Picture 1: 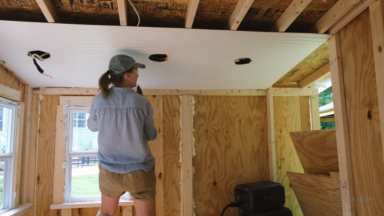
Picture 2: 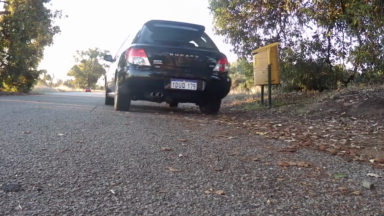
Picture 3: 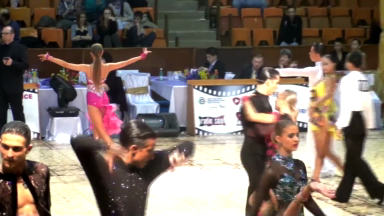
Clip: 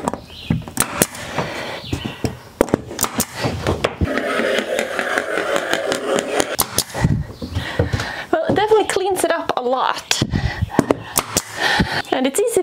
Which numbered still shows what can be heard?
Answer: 1